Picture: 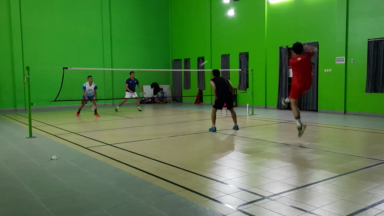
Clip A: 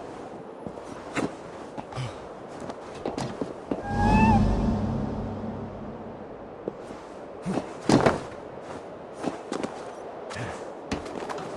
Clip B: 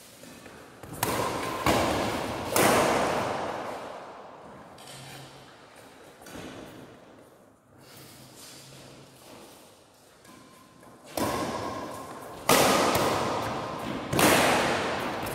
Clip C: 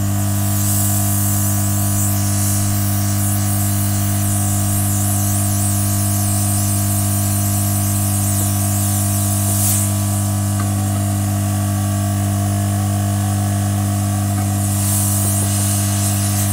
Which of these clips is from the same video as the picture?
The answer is B